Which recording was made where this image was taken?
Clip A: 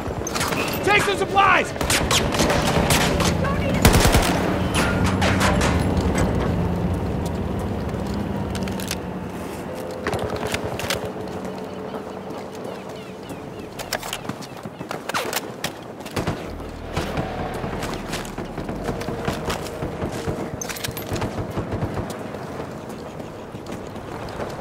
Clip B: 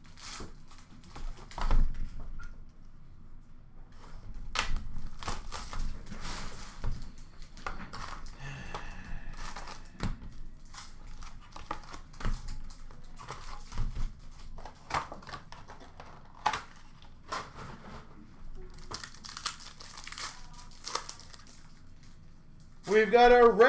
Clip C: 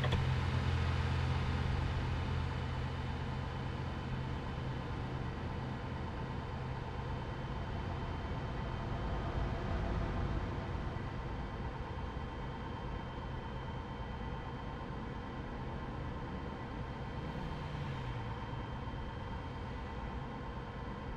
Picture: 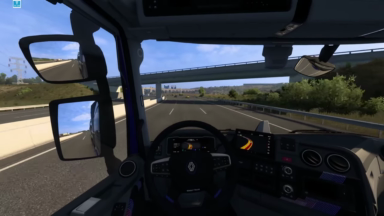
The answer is C